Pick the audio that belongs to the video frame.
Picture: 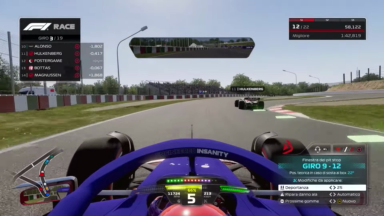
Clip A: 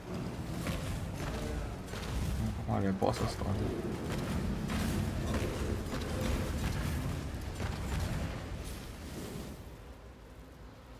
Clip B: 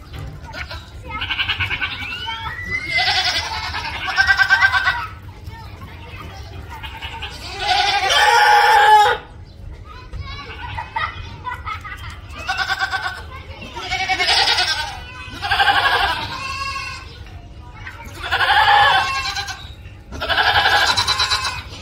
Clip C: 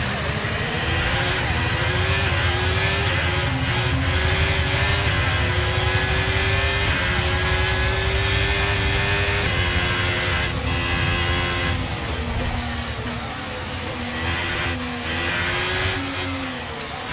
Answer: C